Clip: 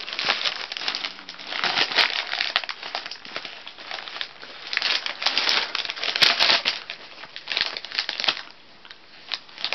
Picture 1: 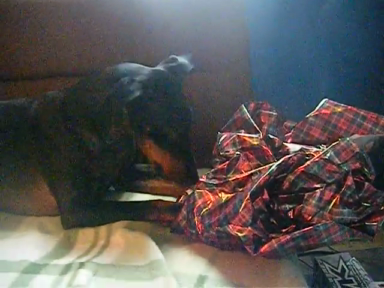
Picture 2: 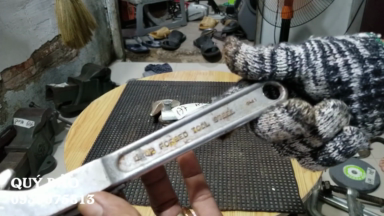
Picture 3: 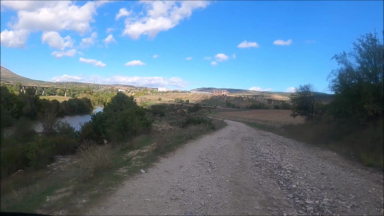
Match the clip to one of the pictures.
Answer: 1